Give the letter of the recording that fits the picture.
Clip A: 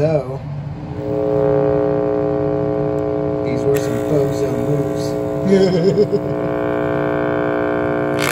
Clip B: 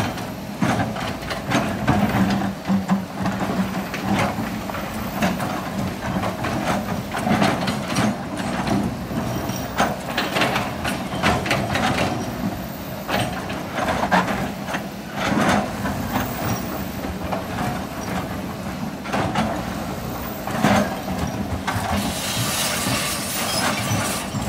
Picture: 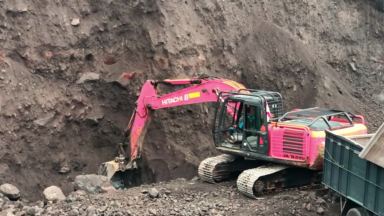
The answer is B